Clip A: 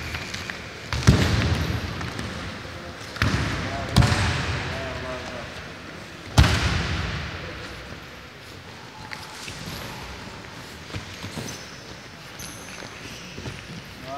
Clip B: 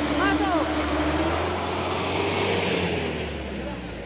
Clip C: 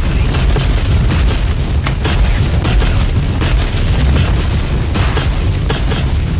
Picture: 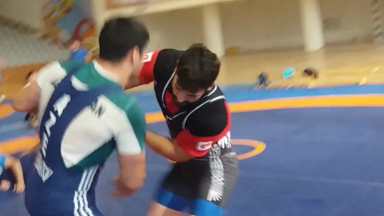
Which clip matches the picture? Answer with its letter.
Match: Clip A